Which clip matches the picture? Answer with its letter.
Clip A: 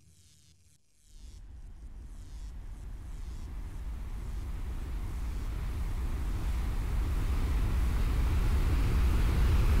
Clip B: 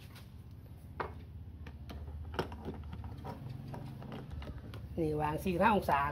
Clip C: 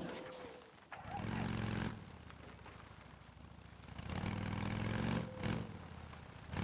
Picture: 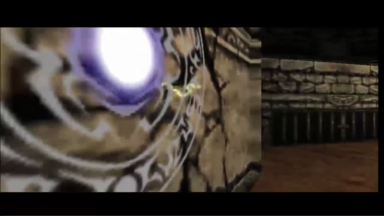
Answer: A